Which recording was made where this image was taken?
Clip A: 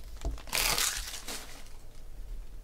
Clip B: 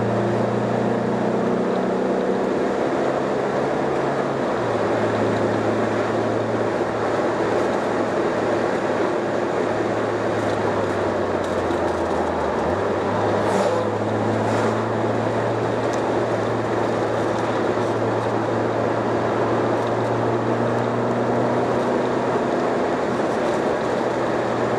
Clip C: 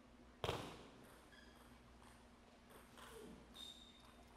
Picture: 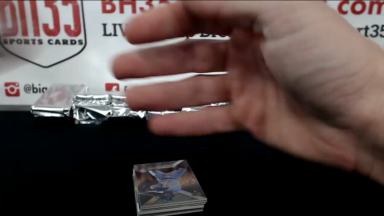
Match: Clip A